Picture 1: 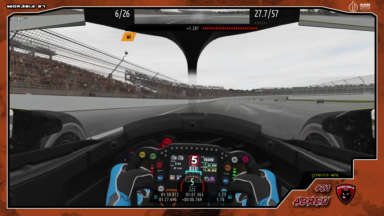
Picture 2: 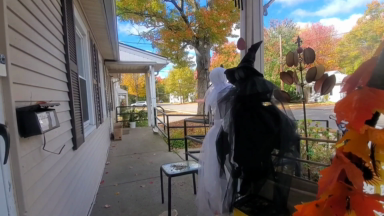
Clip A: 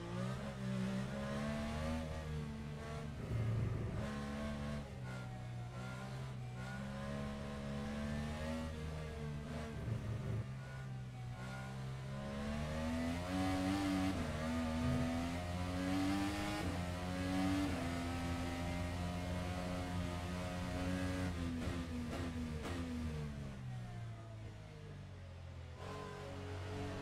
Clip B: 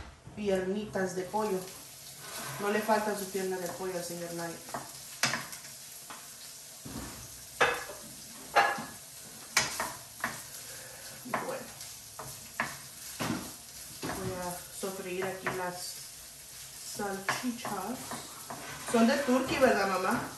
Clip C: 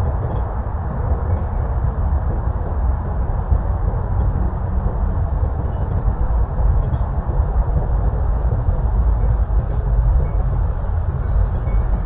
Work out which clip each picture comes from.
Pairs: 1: A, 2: C